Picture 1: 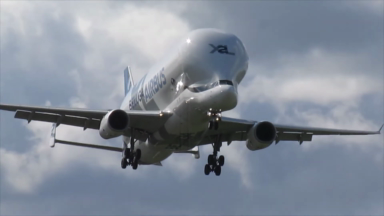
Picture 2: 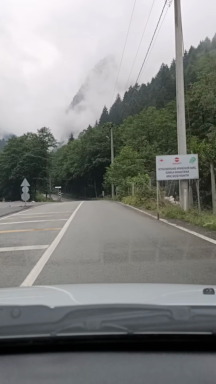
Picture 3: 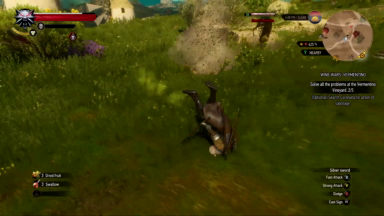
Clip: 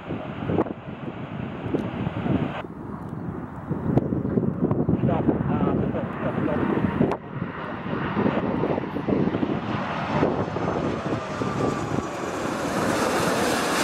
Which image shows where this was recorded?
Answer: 1